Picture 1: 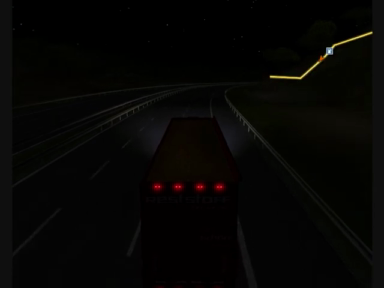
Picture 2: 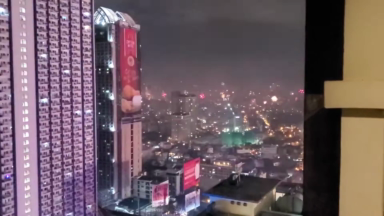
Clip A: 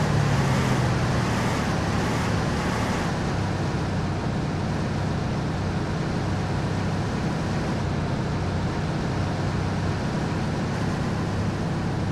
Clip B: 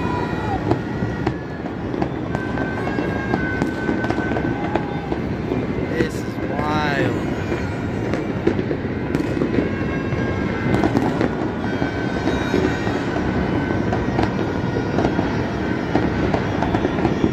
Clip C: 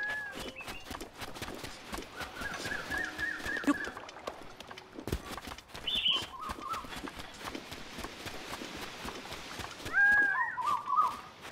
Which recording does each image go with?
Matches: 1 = A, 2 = B